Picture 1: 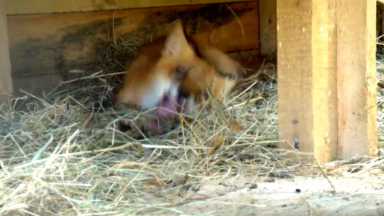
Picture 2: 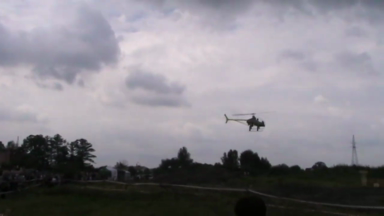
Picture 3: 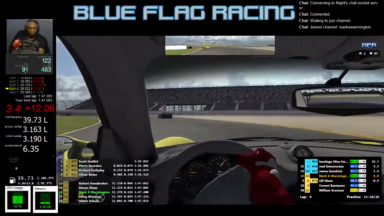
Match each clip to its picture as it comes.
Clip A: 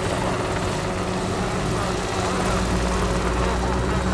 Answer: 2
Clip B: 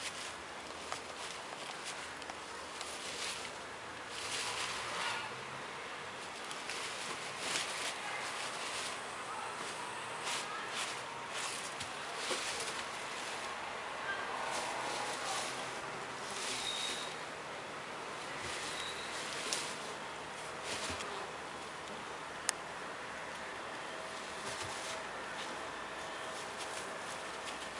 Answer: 1